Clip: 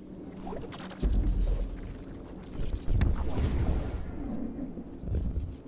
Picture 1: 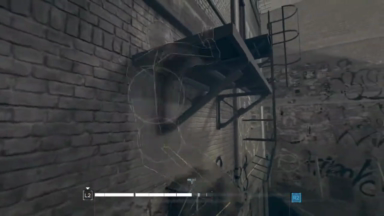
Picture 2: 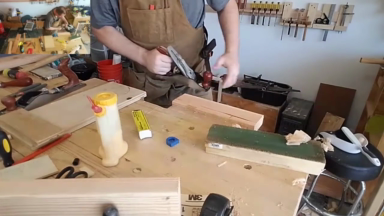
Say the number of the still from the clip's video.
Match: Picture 1